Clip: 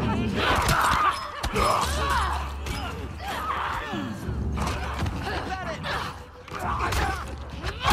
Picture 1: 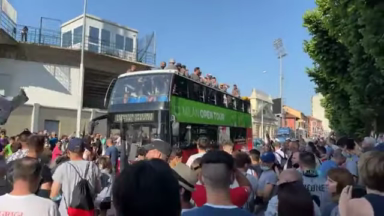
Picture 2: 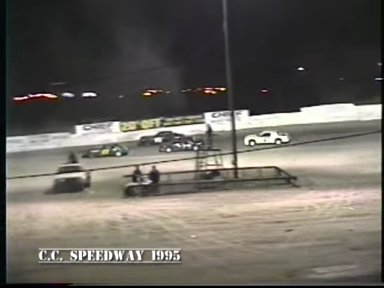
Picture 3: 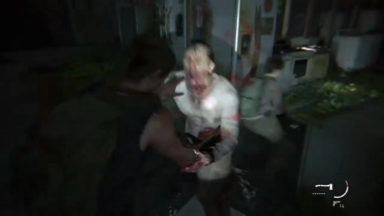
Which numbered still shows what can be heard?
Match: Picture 3